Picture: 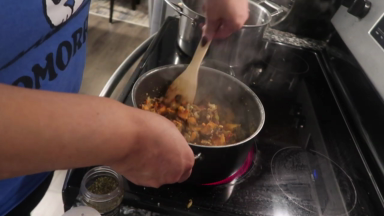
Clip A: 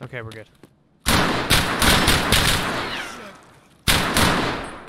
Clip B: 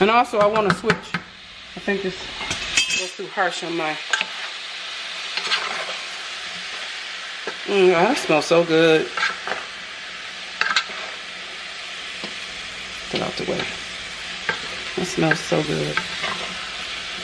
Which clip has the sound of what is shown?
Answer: B